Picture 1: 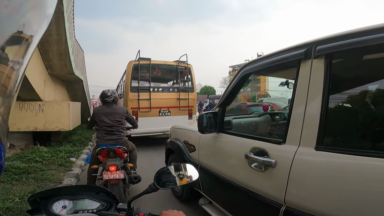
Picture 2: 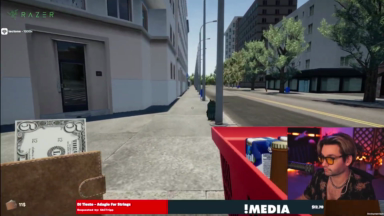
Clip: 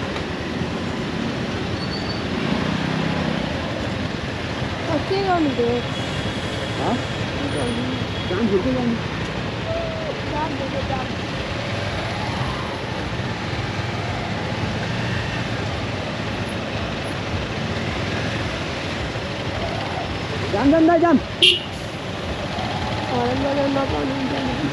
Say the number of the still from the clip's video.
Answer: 1